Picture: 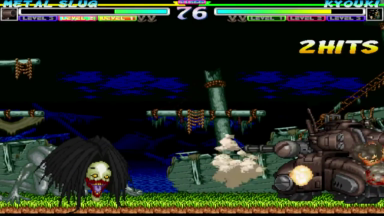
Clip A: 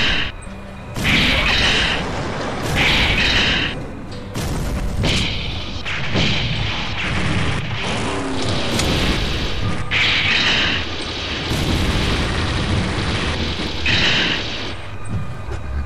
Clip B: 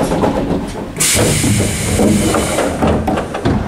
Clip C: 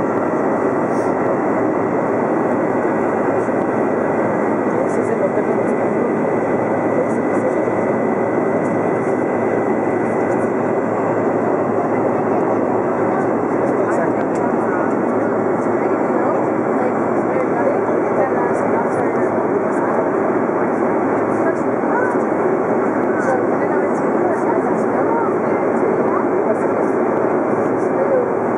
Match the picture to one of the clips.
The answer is A